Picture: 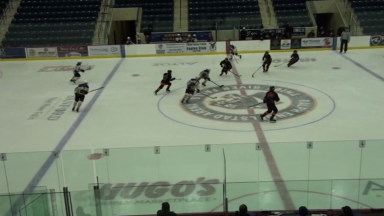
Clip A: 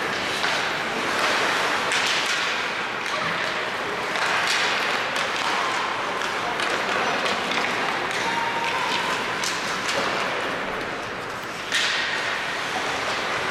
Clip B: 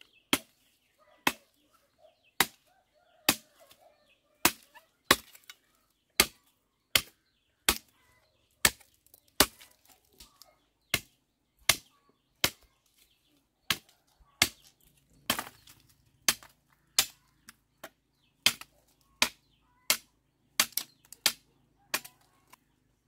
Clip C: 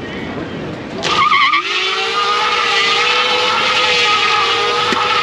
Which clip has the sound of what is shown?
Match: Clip A